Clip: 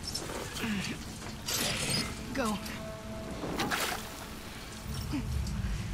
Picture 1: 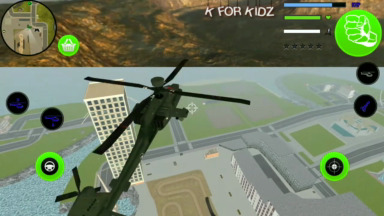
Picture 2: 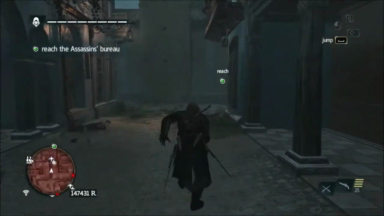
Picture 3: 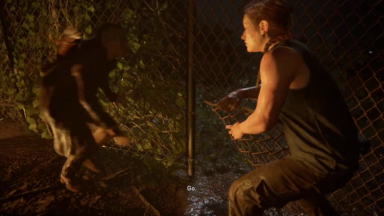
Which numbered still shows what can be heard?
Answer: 3